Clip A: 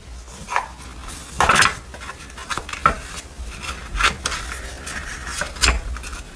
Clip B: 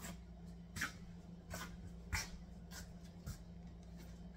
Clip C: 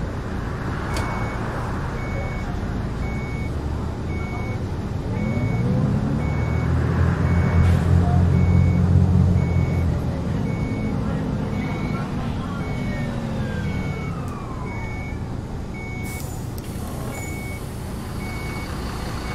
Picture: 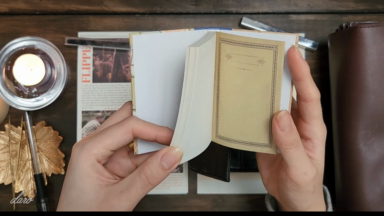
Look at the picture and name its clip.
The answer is A